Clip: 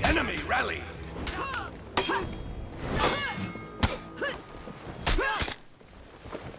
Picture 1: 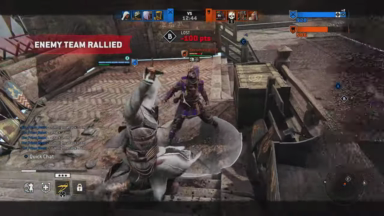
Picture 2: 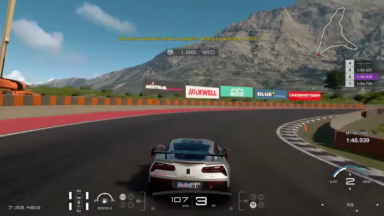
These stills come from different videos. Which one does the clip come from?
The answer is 1